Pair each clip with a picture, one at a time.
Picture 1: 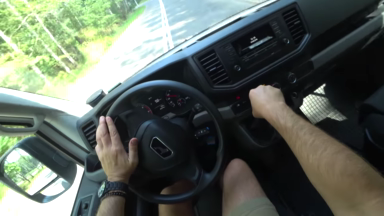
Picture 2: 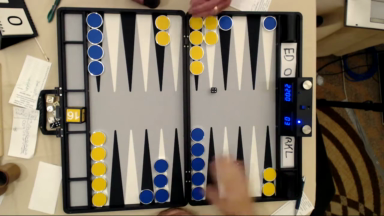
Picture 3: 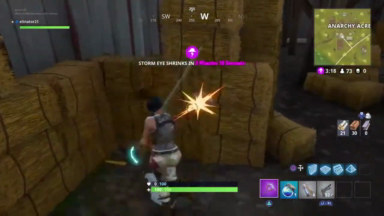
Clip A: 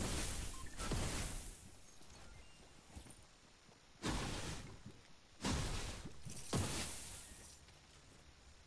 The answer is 3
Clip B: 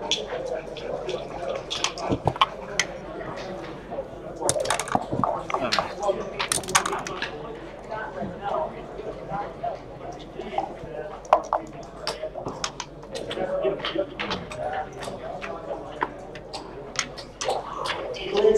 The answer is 2